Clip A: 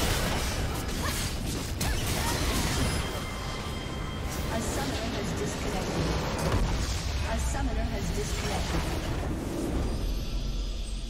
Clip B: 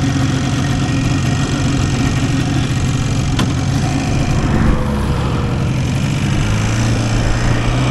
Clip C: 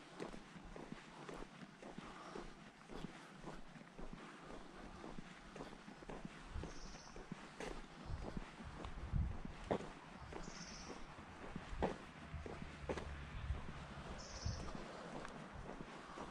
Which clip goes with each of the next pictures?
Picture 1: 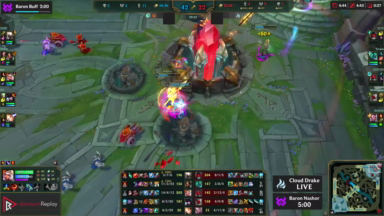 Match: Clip A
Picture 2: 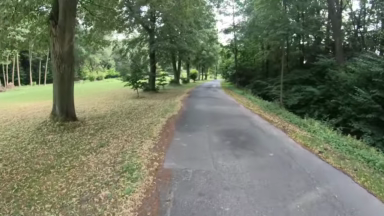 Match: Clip C